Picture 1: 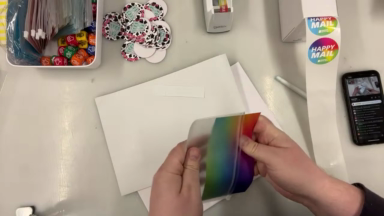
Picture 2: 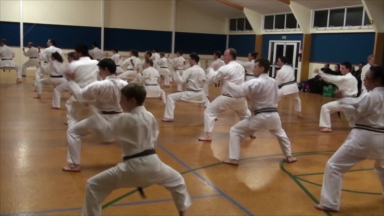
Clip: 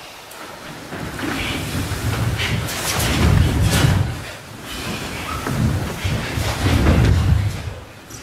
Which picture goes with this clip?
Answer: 2